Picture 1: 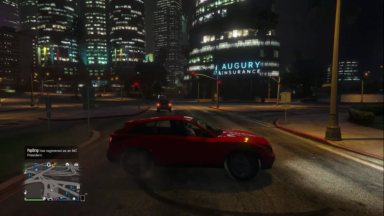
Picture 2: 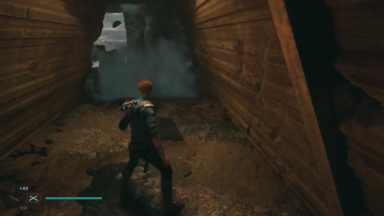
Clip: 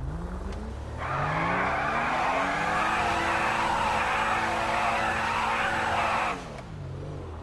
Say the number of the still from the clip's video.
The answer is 1